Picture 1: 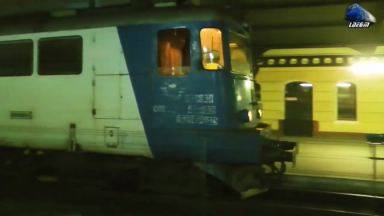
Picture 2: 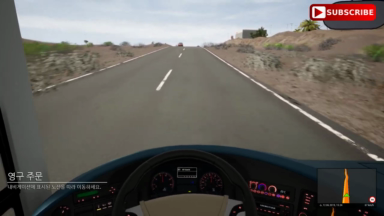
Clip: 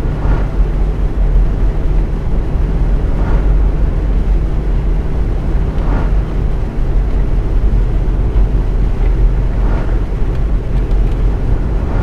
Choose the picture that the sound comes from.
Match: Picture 2